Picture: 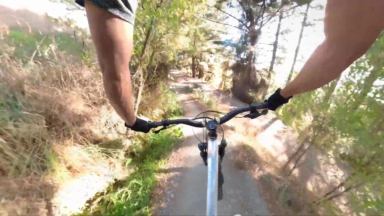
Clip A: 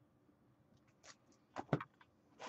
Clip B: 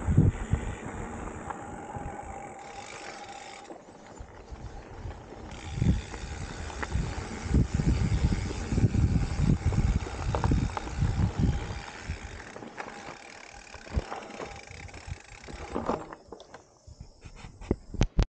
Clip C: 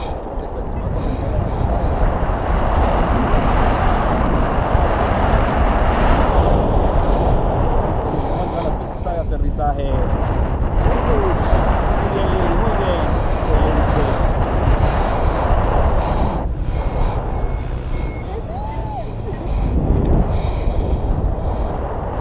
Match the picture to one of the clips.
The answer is B